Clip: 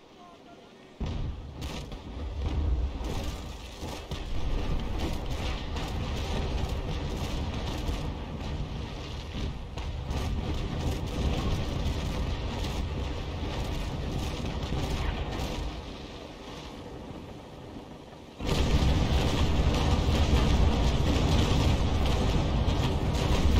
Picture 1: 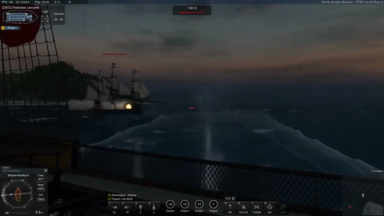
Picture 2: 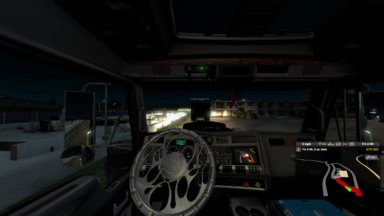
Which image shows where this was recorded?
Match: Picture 1